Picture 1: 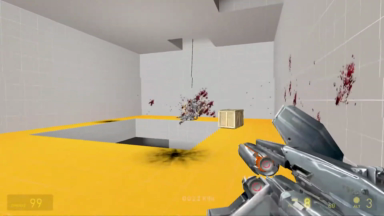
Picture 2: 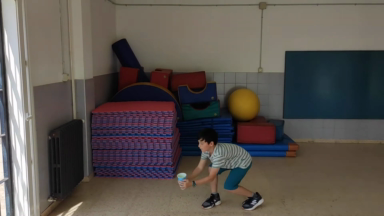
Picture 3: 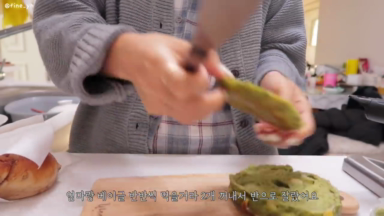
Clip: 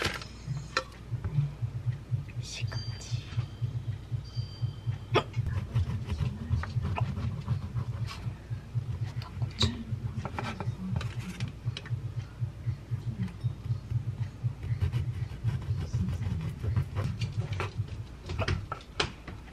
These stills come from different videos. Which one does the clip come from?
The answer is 3